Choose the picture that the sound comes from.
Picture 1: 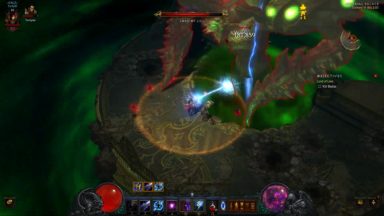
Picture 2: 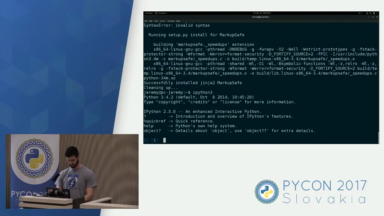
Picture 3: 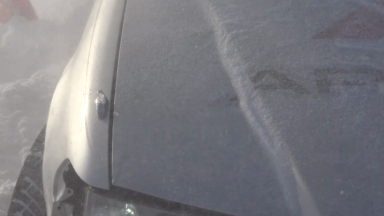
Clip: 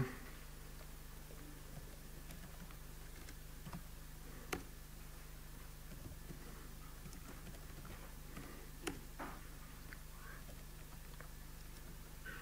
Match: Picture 2